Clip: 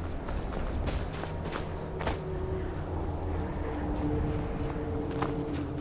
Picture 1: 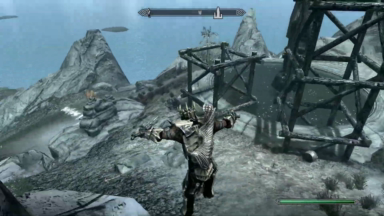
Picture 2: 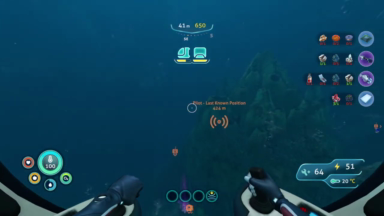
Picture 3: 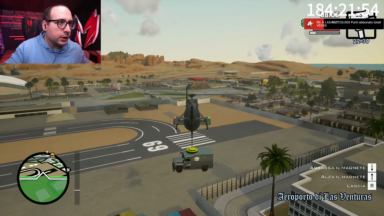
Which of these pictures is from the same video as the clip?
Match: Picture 1